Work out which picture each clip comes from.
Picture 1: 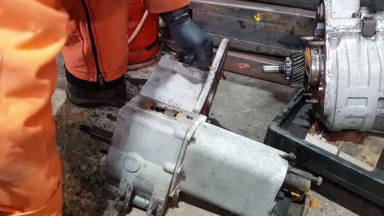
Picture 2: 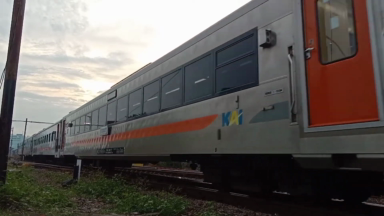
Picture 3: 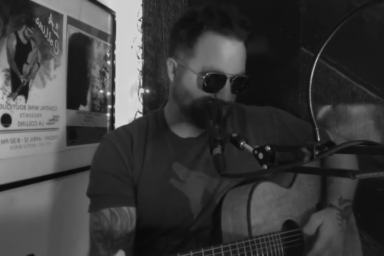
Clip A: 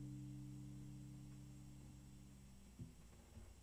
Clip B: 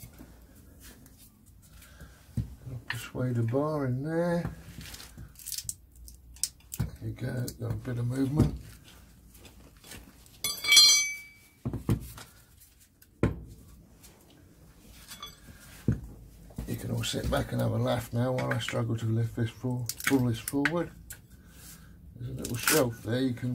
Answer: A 3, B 1